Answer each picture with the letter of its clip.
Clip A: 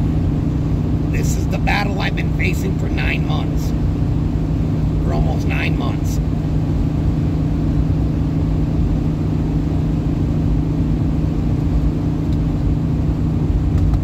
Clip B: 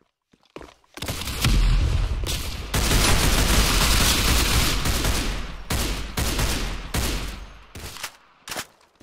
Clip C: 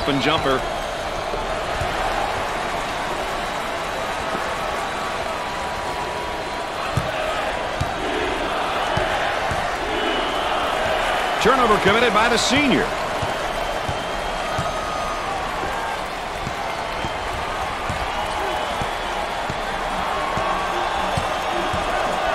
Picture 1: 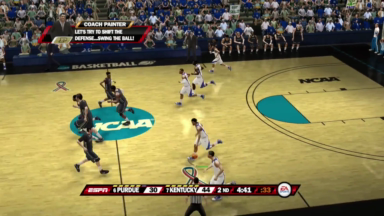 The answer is C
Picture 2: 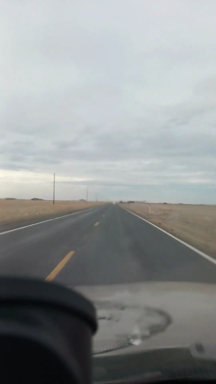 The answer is A